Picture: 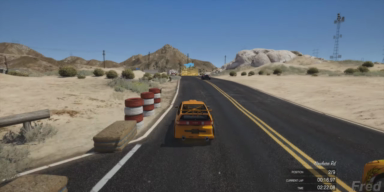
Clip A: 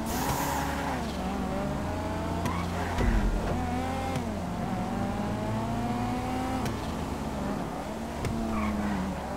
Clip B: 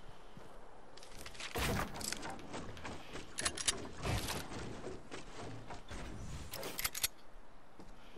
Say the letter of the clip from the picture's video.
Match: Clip A